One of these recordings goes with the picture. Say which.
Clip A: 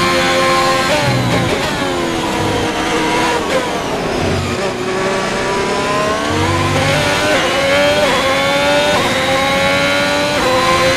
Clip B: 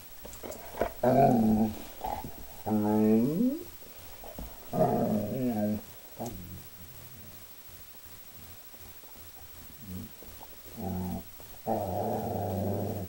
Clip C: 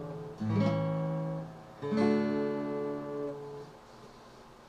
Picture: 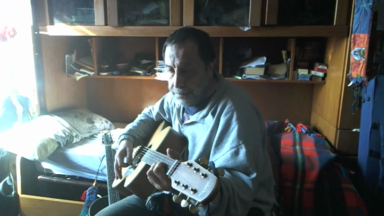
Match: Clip C